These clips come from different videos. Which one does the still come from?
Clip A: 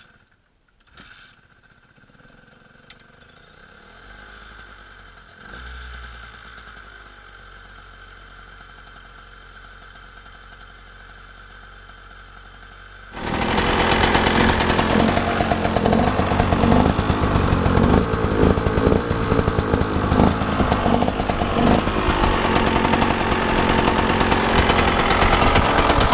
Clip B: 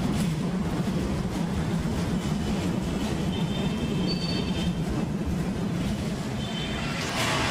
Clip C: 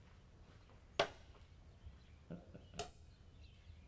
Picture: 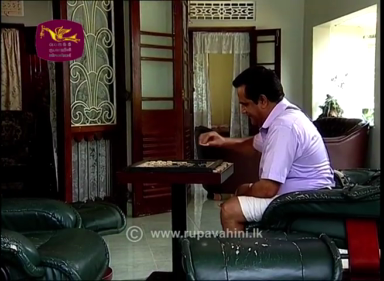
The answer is C